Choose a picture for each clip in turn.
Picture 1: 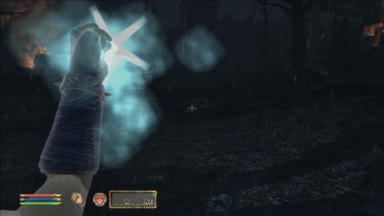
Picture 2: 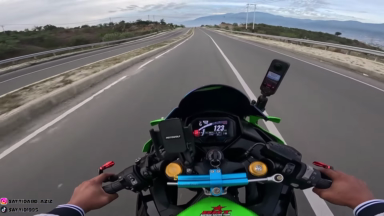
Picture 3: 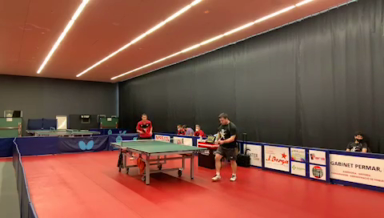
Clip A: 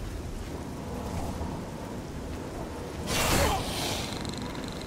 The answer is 1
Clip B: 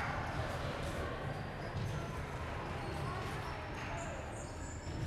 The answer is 3